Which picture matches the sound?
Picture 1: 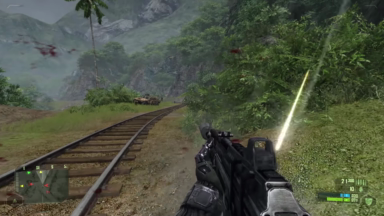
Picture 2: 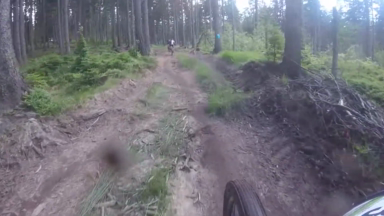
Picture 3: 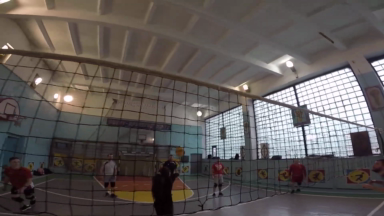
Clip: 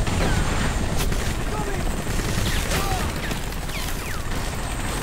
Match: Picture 1